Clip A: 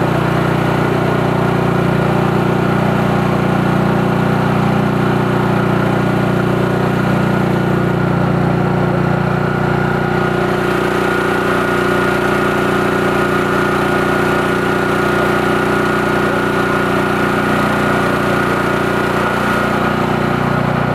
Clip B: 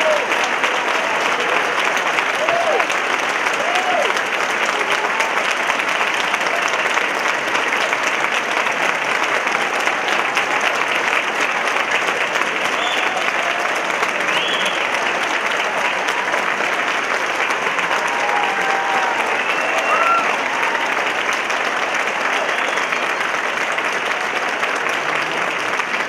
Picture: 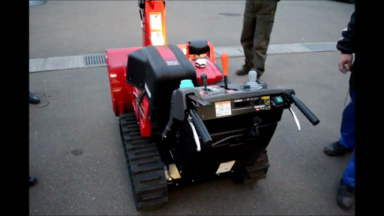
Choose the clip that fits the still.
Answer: A